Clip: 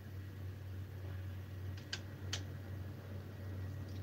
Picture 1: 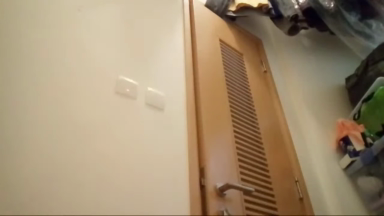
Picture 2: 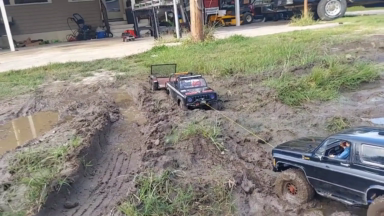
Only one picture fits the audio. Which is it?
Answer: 1